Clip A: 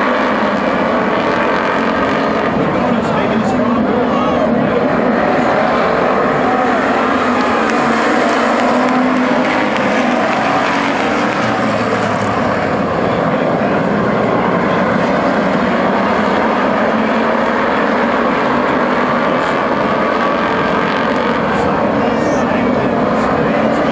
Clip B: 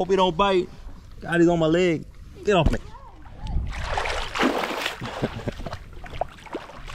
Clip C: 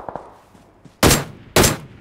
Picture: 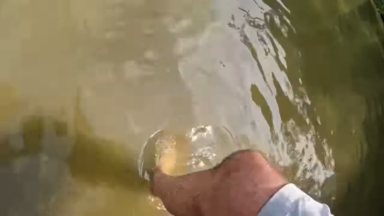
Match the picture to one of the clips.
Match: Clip B